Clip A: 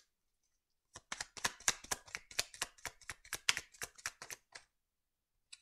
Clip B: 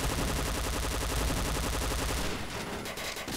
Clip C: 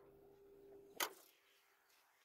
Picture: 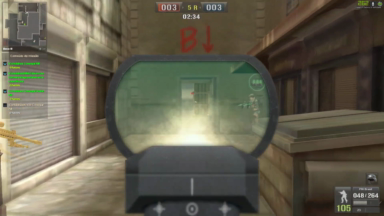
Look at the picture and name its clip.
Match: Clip B